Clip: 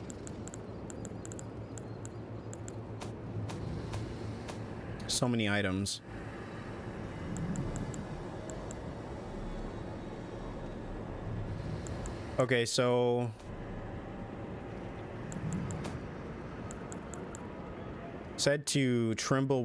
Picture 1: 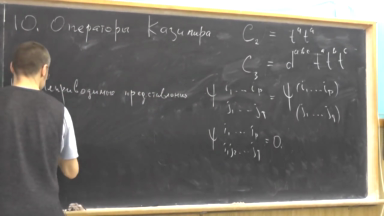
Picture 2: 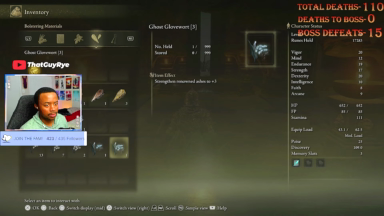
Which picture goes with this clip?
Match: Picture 2